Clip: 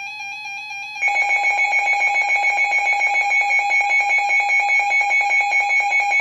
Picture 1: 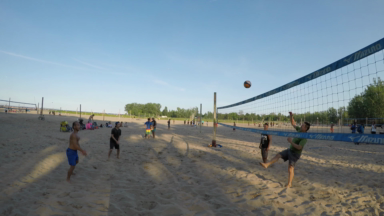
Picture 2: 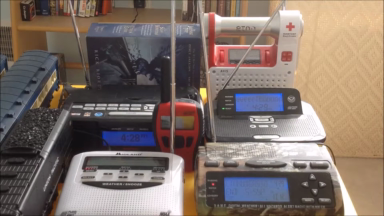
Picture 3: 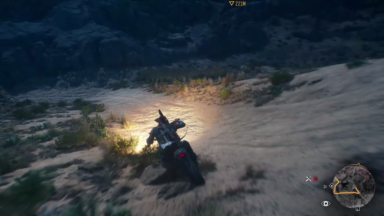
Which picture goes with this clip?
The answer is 2